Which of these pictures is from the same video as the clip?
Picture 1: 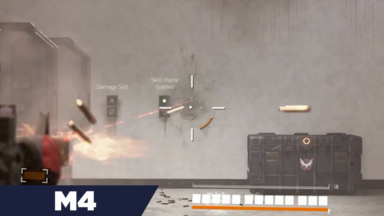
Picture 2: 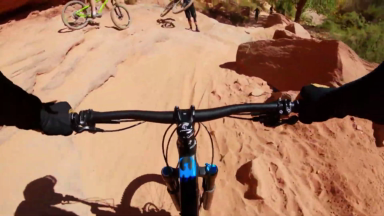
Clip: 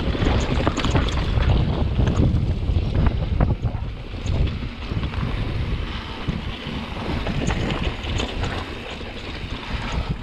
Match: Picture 2